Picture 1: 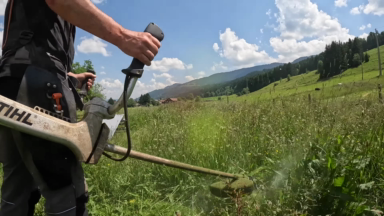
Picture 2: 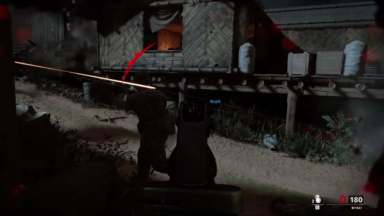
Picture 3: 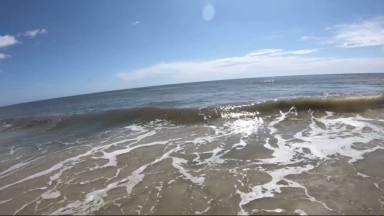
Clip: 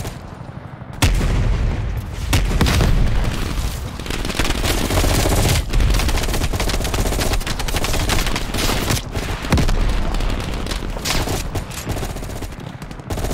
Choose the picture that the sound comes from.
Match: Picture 2